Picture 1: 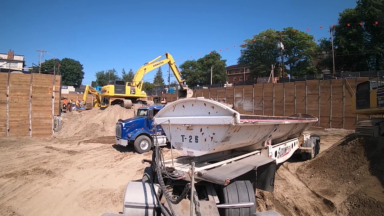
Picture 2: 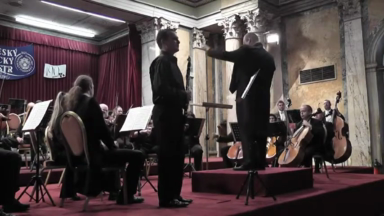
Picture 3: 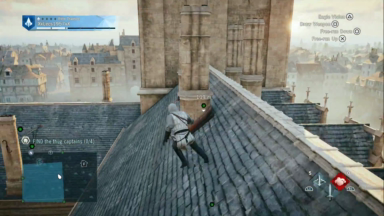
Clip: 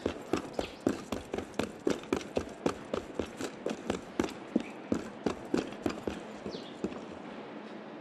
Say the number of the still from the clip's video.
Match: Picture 3